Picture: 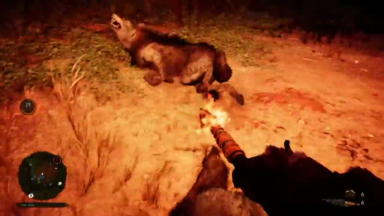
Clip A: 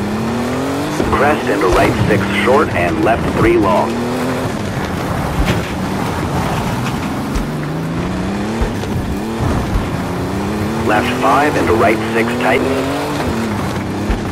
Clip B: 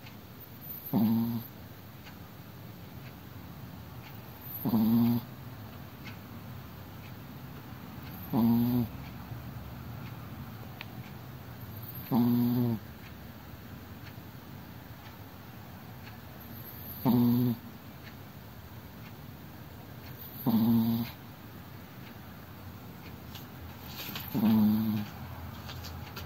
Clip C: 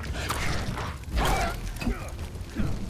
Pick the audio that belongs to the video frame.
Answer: C